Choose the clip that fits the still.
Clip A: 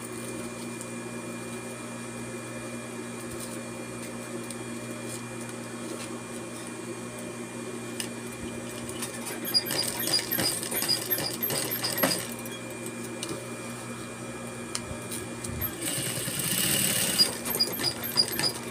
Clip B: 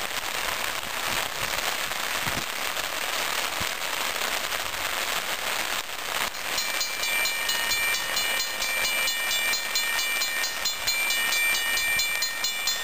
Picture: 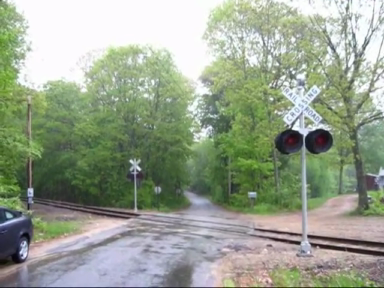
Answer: B